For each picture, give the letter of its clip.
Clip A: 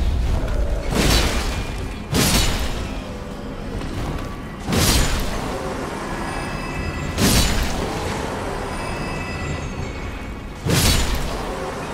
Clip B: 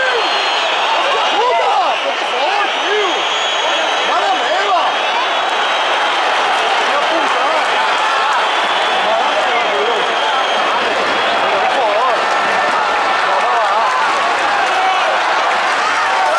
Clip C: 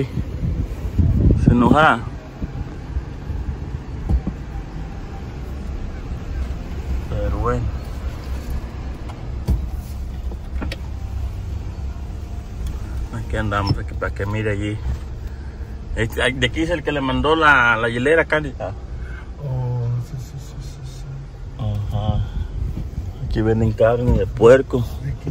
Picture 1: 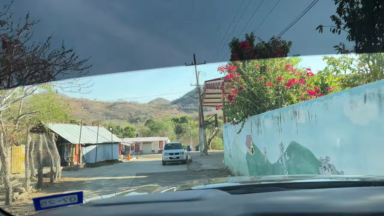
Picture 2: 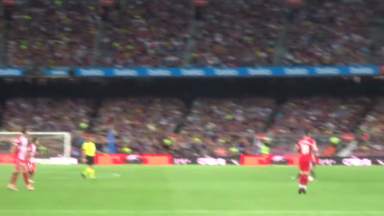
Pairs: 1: C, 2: B